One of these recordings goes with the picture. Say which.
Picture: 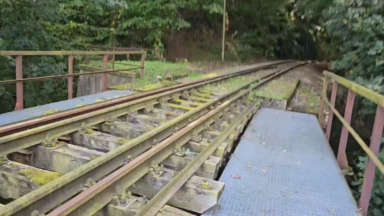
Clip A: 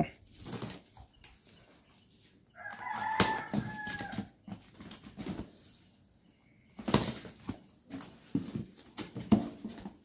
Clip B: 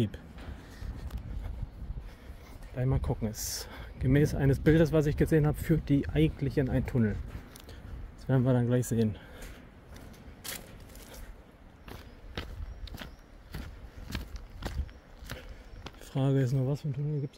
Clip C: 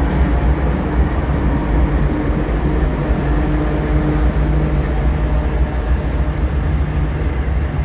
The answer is B